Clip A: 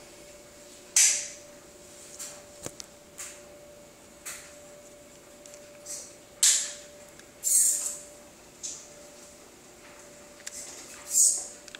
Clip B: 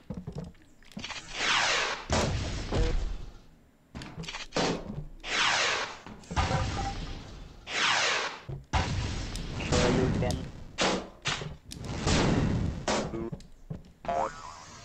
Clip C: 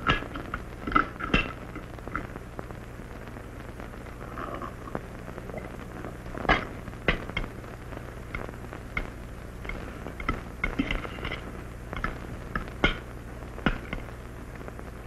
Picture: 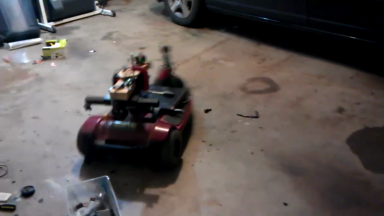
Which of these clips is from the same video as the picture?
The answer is A